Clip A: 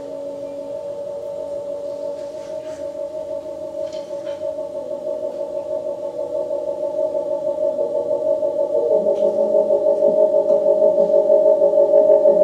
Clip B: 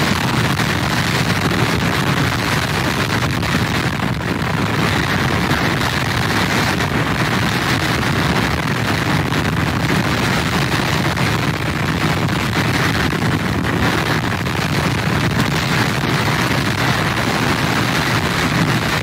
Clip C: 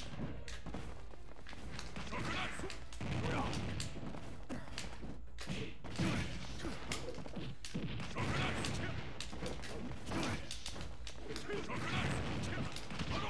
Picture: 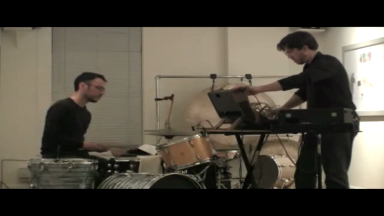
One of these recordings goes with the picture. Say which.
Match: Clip A